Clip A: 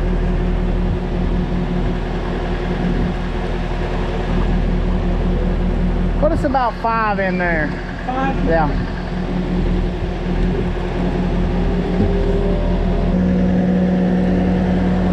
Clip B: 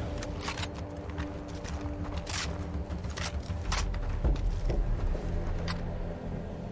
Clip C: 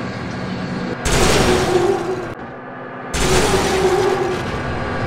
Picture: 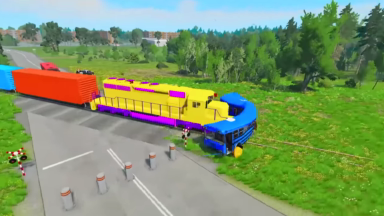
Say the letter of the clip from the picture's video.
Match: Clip C